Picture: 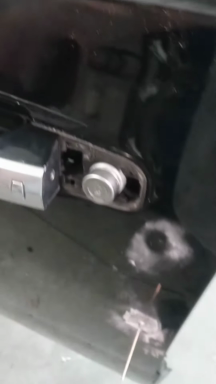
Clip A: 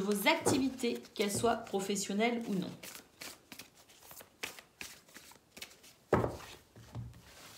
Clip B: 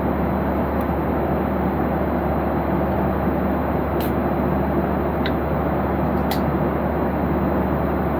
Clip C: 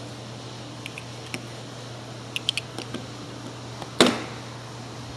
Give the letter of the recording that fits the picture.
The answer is C